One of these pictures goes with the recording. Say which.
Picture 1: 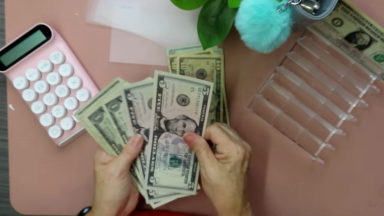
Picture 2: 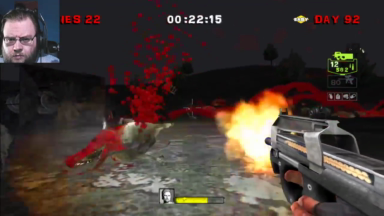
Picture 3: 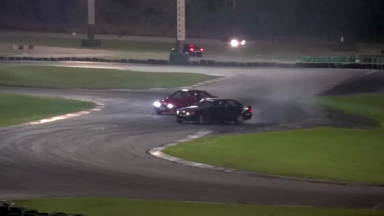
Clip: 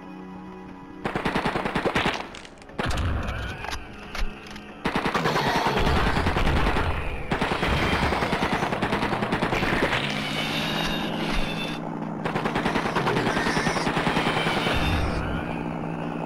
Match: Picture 2